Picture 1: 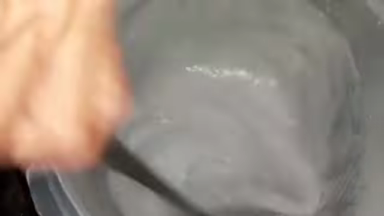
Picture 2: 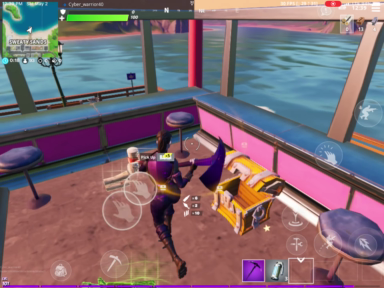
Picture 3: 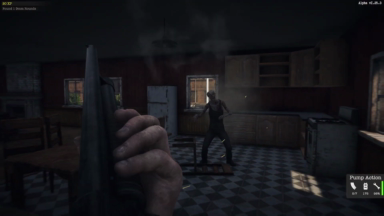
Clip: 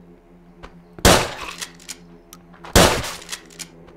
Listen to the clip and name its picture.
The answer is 3